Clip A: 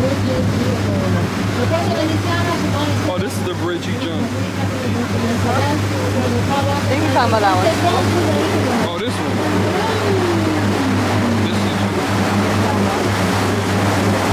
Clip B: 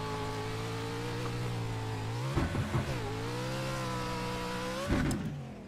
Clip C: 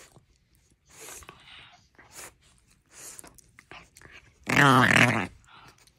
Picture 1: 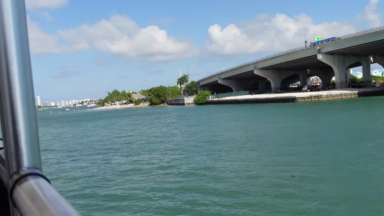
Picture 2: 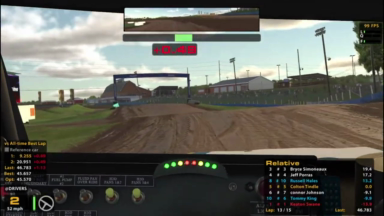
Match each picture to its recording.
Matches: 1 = A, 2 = B